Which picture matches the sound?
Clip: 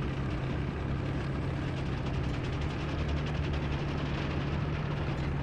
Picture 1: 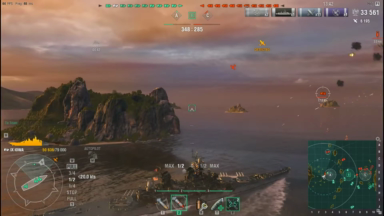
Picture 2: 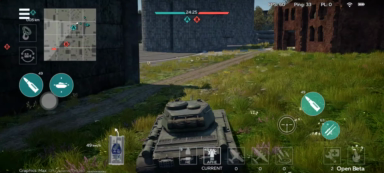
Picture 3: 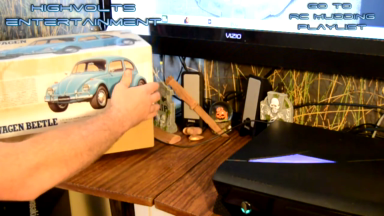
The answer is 2